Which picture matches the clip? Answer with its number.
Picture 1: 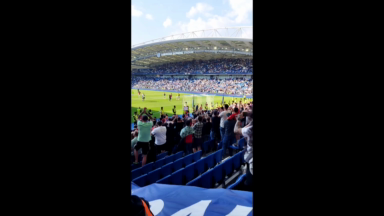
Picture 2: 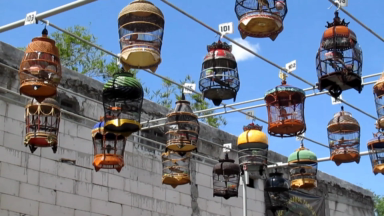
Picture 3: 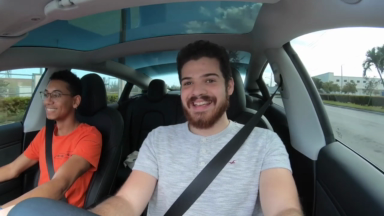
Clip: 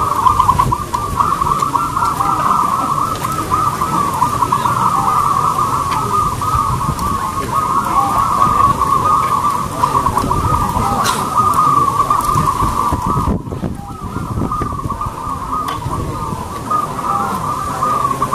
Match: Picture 2